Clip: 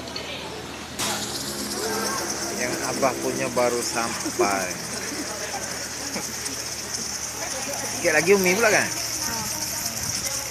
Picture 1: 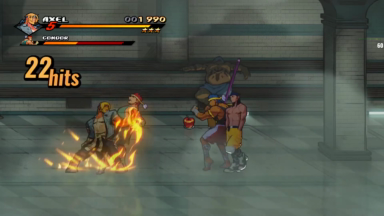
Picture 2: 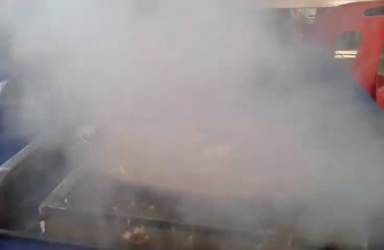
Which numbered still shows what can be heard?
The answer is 2